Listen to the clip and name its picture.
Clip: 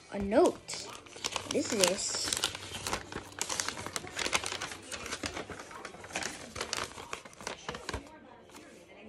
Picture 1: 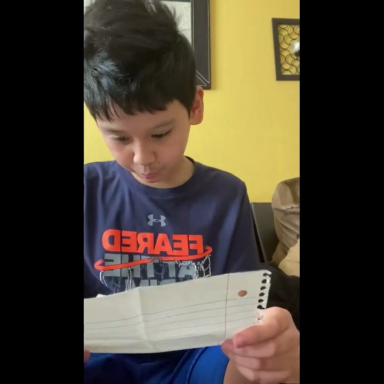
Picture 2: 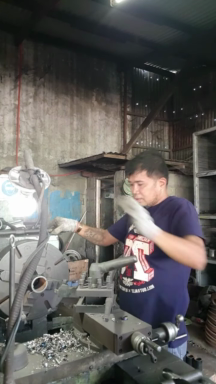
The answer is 1